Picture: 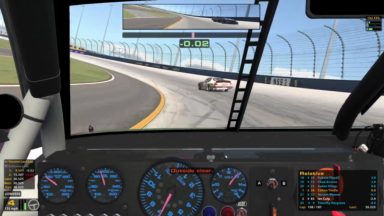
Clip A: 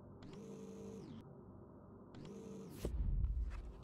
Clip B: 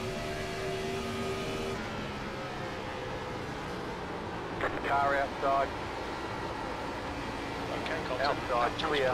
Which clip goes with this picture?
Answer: B